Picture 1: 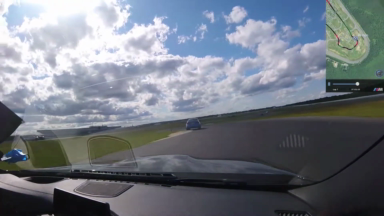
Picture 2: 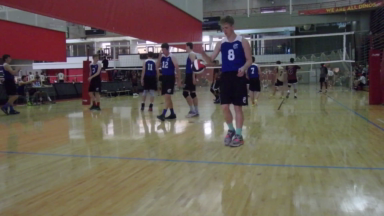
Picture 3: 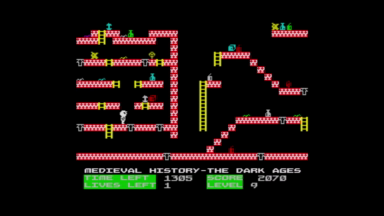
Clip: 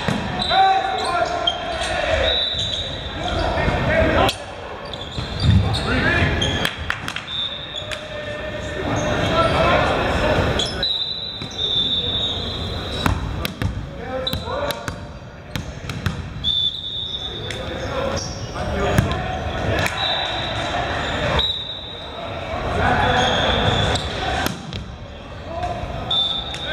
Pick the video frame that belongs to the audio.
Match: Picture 2